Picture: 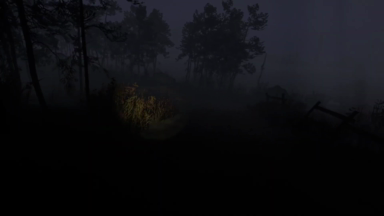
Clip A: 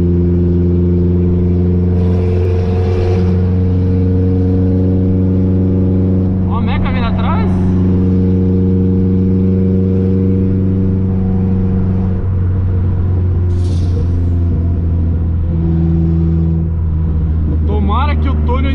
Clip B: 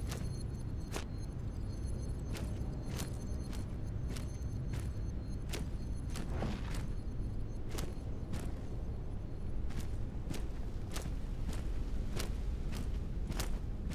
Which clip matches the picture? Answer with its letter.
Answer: B